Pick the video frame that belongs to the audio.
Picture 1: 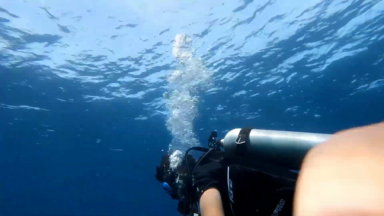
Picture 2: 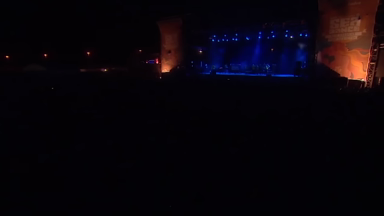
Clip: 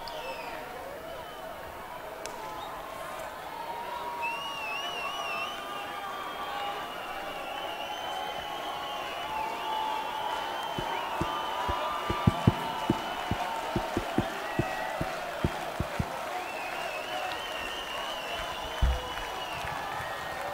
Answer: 2